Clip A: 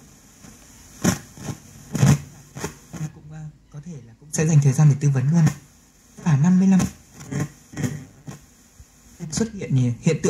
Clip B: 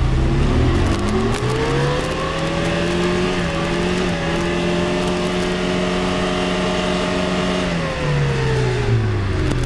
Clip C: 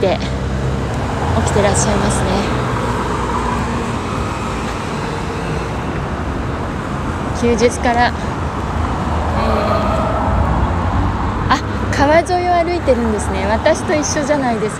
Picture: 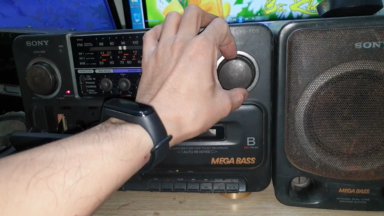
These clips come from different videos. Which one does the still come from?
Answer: A